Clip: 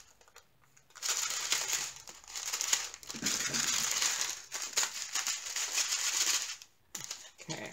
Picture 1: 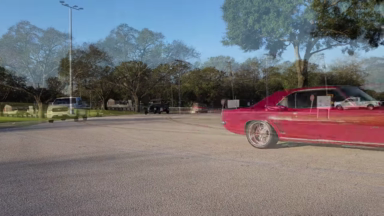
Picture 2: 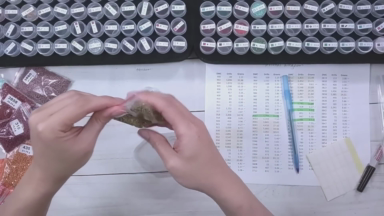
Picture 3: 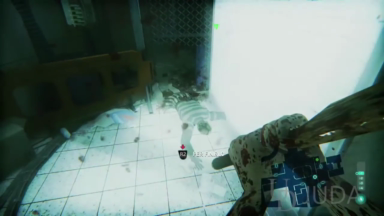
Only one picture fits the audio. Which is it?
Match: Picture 2